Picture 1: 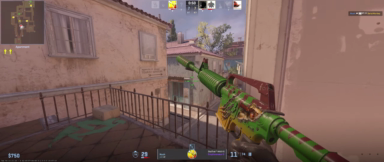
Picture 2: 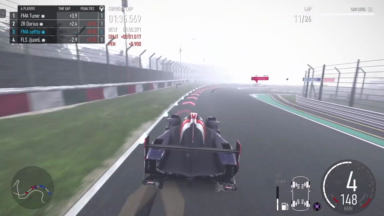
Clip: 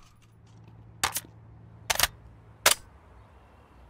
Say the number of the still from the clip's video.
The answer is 1